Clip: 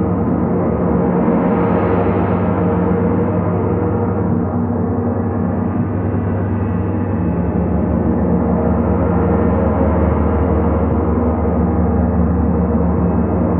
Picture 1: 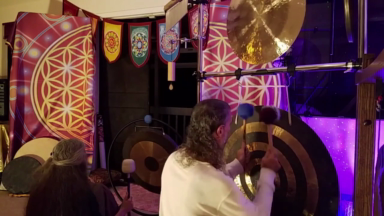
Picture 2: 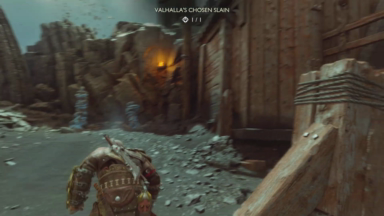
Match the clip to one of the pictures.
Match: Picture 1